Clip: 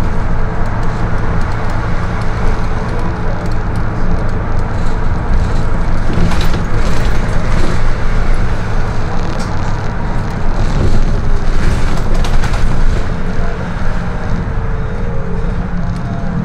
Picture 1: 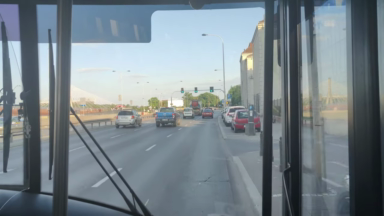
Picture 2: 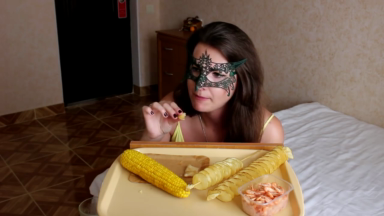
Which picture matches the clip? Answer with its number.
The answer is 1